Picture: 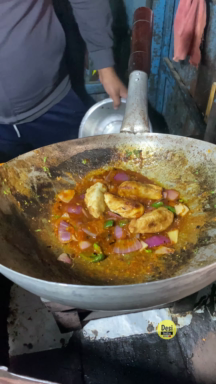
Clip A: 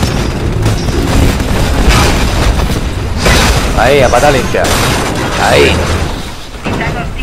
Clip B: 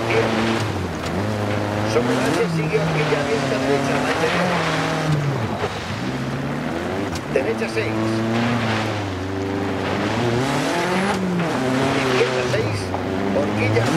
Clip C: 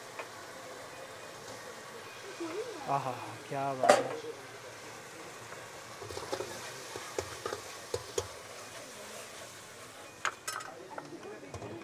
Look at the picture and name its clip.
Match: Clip C